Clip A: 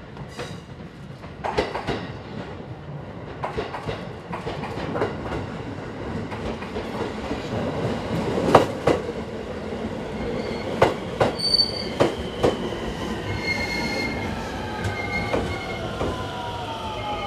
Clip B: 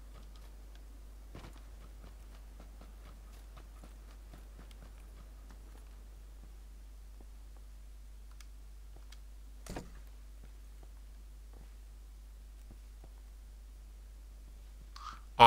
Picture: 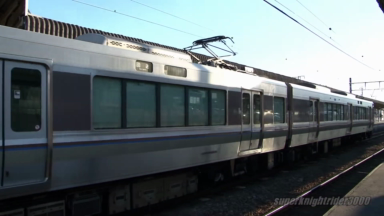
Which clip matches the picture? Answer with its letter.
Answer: A